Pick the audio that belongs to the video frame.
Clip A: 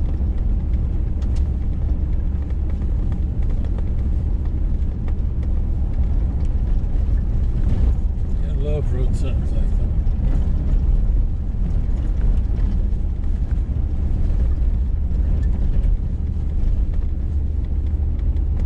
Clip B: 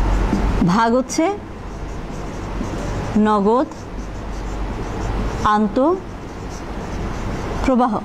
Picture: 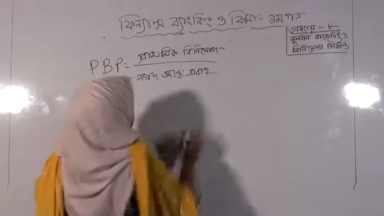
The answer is B